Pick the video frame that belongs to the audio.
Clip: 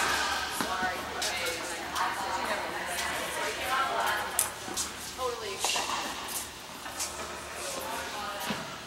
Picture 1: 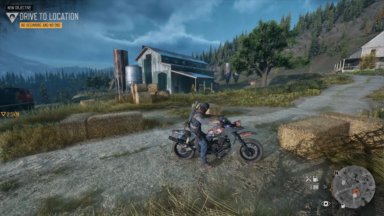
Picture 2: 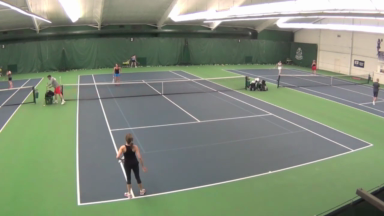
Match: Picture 2